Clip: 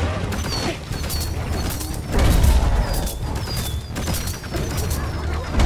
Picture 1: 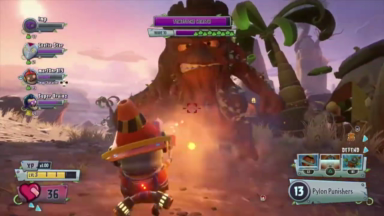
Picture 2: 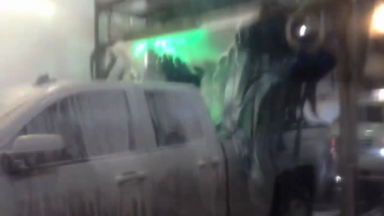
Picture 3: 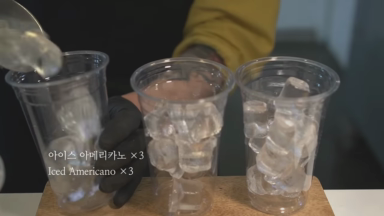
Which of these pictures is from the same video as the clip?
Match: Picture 1